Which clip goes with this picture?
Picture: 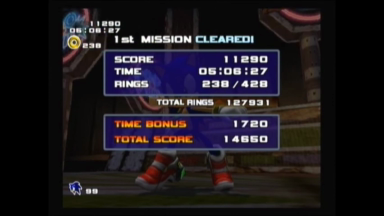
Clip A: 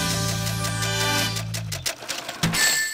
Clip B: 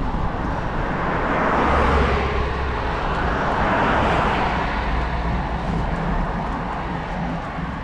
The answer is A